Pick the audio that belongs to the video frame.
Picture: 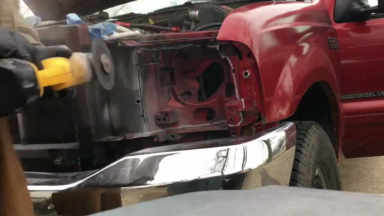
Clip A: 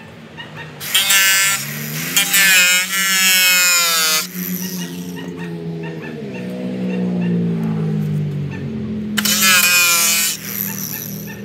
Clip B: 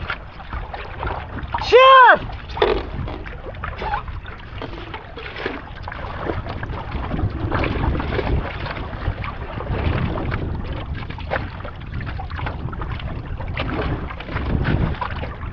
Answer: A